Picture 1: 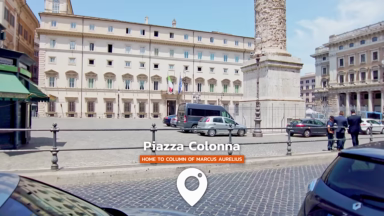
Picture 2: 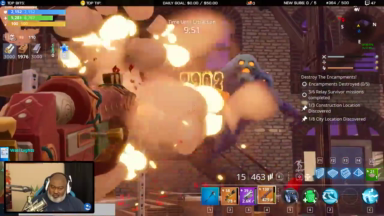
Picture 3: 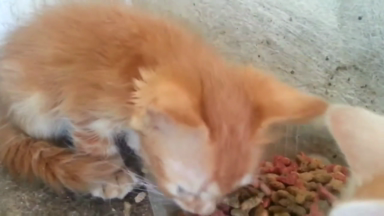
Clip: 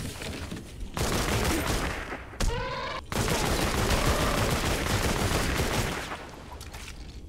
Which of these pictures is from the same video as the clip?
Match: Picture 2